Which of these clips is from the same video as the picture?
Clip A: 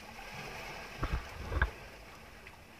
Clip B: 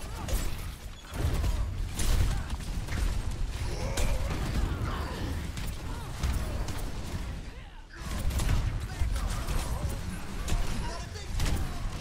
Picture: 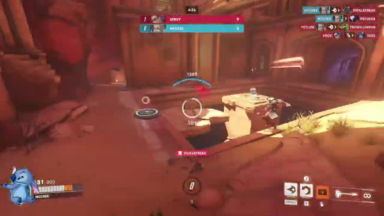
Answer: B